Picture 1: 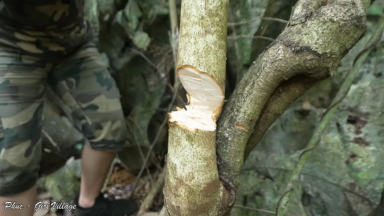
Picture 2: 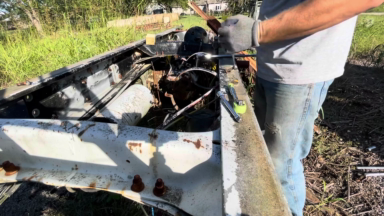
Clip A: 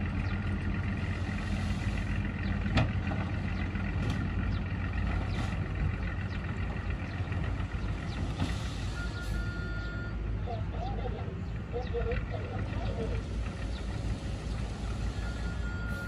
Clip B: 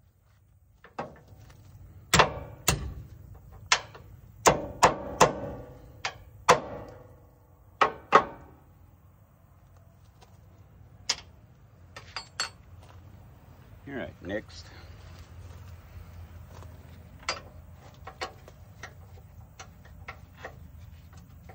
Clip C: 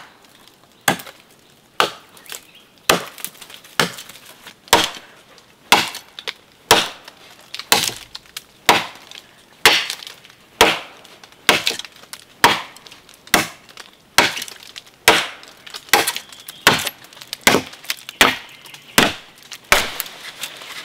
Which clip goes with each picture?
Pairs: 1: C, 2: B